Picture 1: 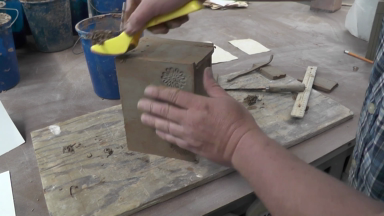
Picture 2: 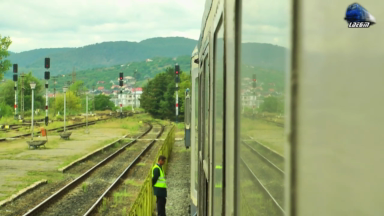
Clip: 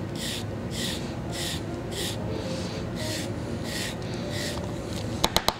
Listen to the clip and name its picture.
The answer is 1